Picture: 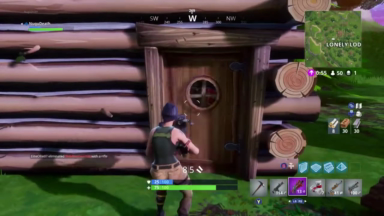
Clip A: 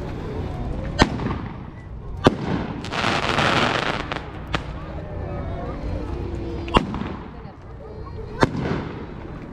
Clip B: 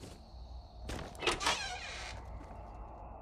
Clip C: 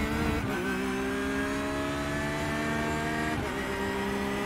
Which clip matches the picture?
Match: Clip B